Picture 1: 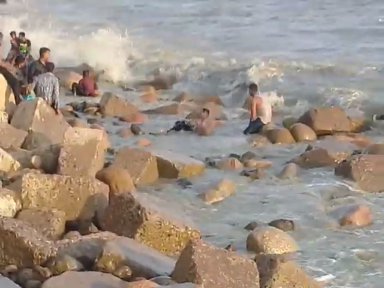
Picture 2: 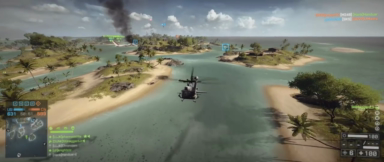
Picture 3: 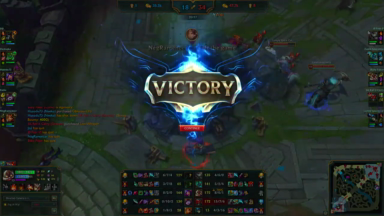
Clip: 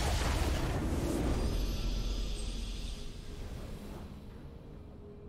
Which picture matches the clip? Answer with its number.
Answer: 3